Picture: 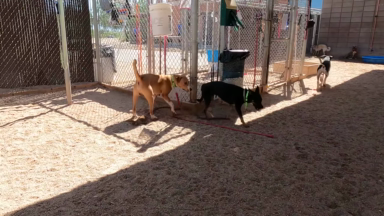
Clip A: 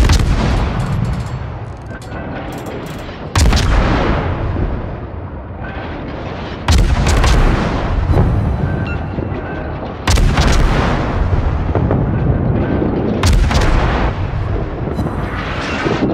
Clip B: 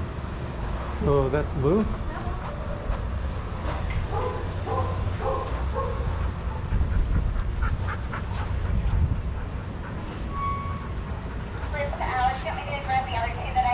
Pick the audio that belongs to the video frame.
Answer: B